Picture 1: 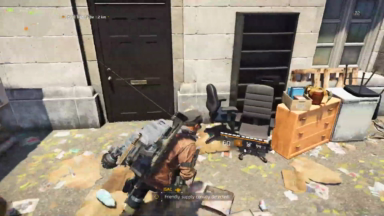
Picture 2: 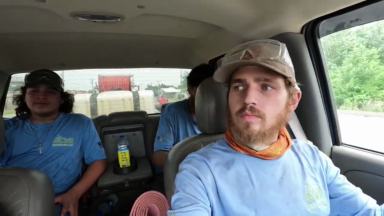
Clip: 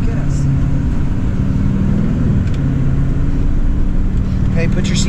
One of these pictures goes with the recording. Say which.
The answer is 2